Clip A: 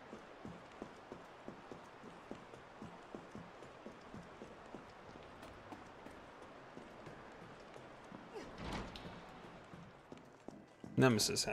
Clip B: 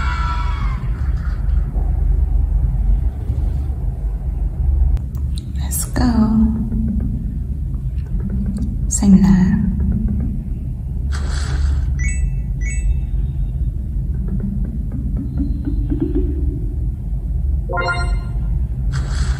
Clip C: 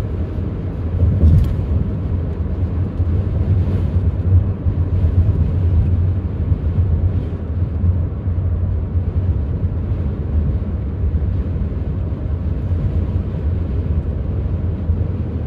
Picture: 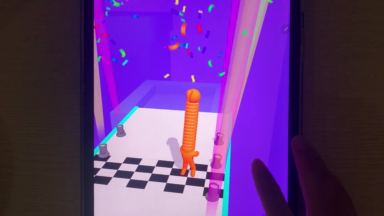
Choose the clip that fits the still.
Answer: B